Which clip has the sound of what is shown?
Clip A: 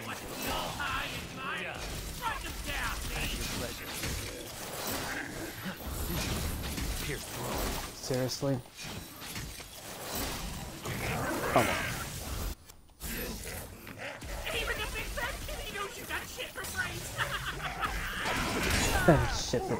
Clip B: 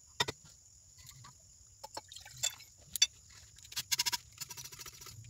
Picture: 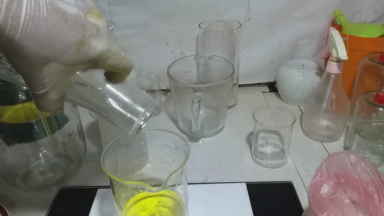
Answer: B